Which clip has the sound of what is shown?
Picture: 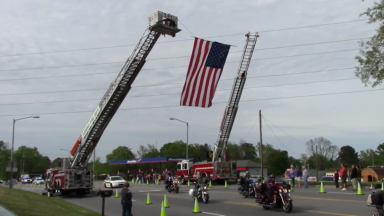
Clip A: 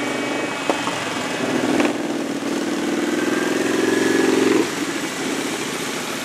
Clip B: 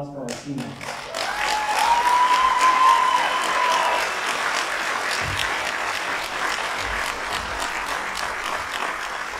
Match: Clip A